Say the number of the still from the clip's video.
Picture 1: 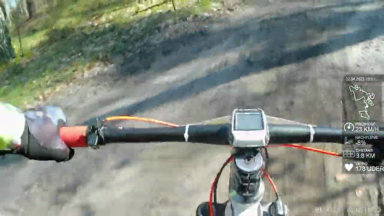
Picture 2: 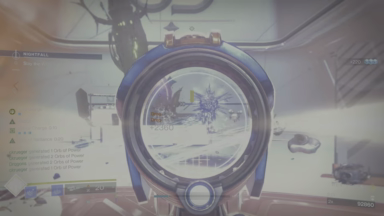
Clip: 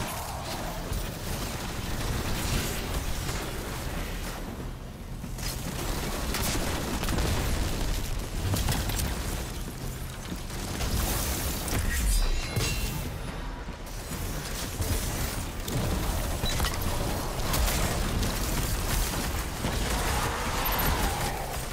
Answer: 2